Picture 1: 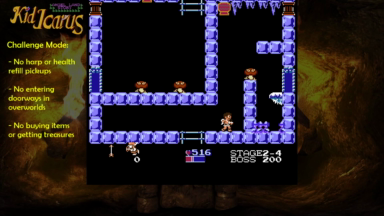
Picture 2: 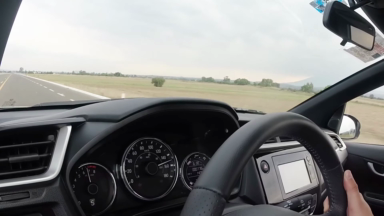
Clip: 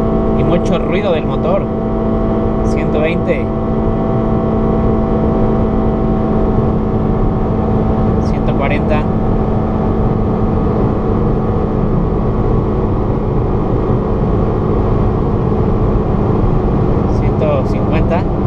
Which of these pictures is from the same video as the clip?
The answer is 2